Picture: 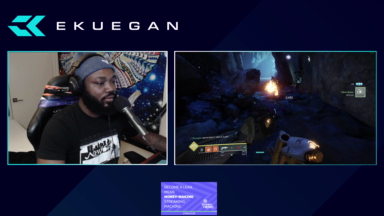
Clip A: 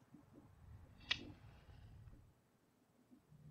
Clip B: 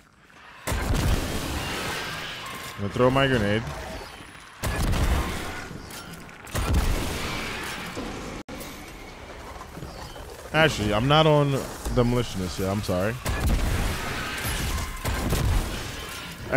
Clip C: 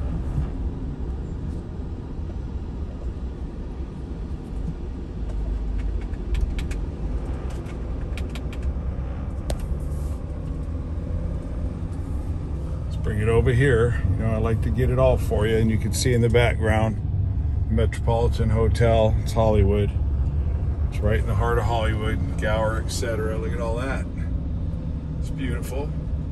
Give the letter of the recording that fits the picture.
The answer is B